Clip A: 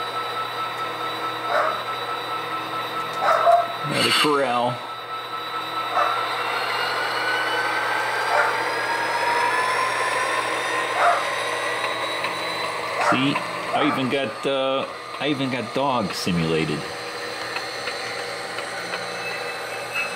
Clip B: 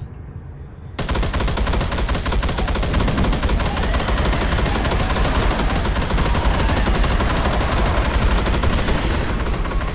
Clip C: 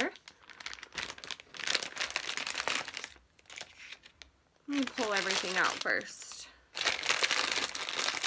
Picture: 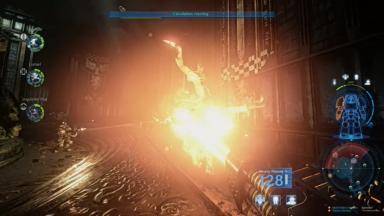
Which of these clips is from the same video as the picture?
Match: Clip B